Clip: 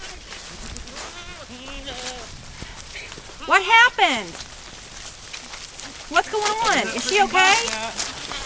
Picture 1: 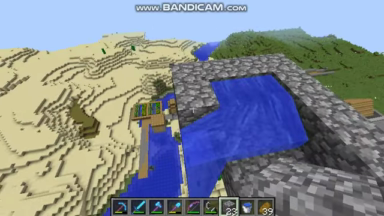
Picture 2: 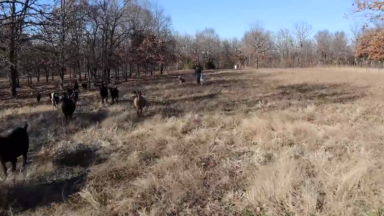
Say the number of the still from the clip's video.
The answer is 2